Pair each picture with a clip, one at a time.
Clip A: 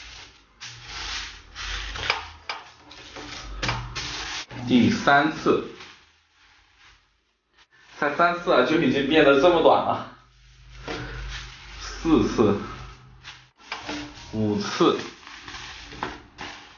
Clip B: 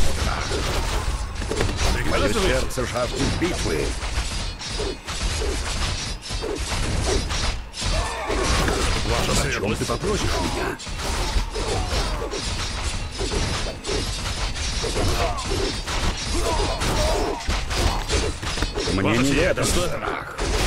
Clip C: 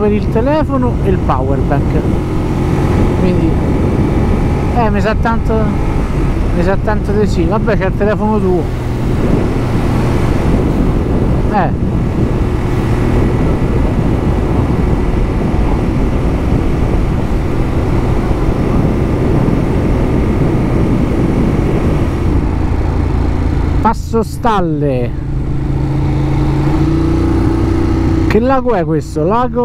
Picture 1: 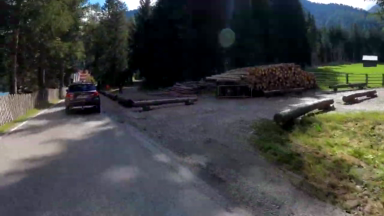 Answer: C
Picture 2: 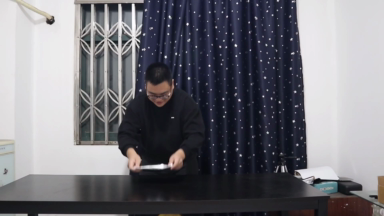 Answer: A